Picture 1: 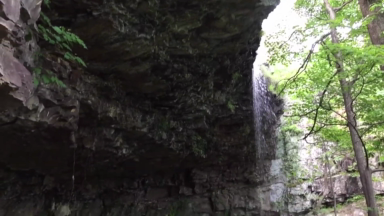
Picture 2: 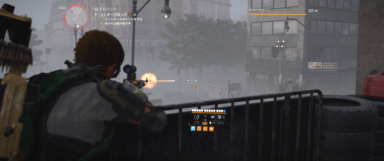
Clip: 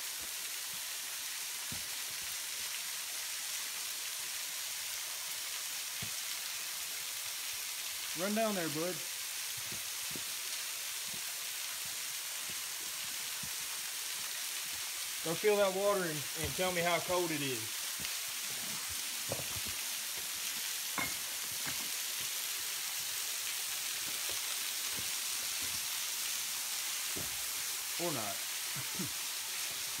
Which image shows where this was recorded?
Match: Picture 1